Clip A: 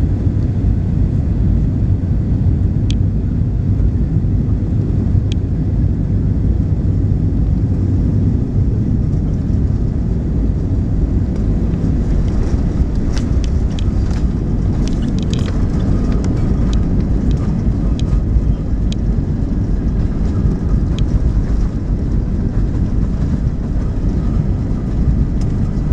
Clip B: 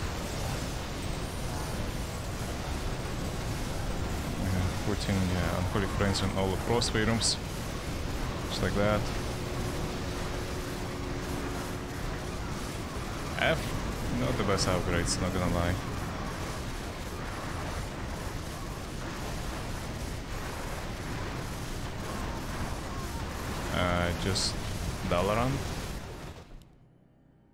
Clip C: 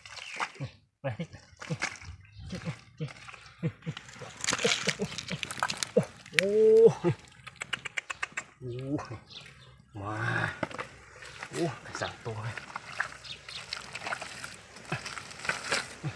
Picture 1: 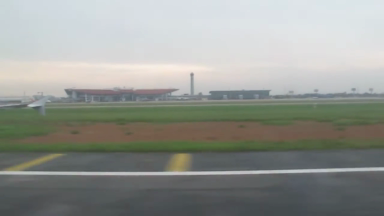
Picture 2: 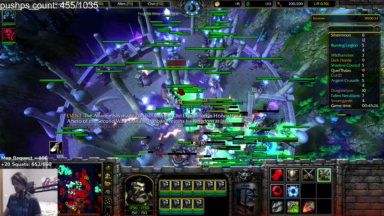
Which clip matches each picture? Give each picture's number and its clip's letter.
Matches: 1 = A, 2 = B